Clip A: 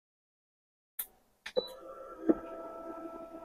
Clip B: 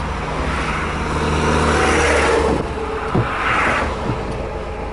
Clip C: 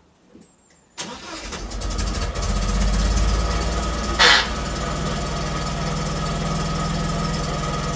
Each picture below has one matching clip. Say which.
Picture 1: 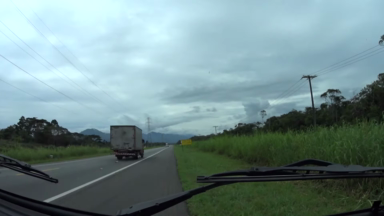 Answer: B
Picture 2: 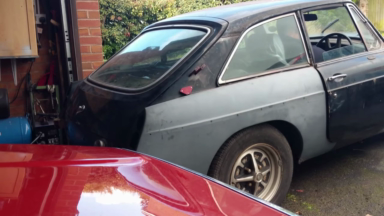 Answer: C